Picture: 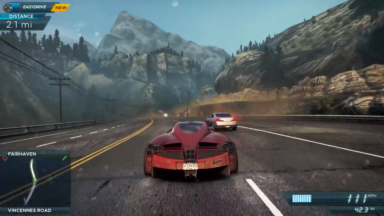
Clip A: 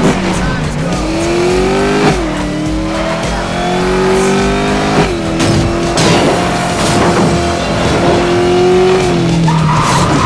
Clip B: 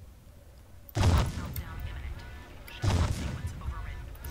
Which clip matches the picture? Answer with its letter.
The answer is A